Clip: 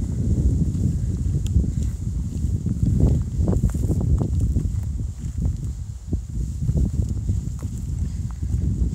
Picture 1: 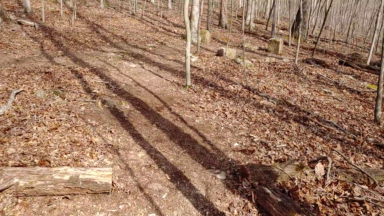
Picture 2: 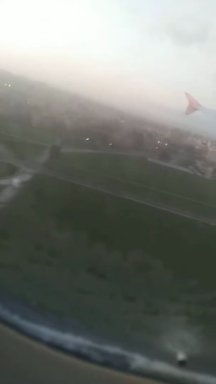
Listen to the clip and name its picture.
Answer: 1